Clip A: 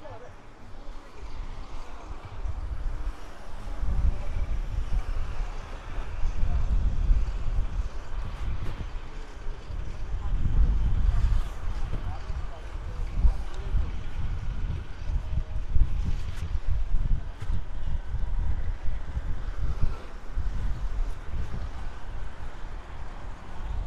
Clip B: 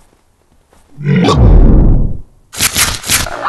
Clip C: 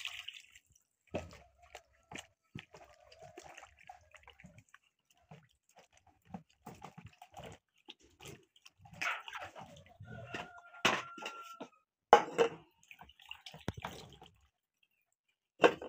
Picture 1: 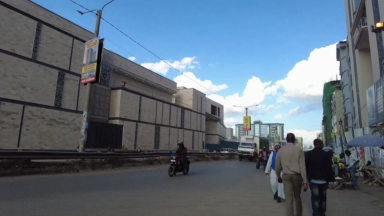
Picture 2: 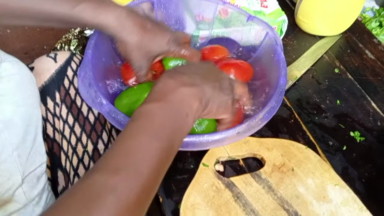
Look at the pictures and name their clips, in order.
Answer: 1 A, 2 C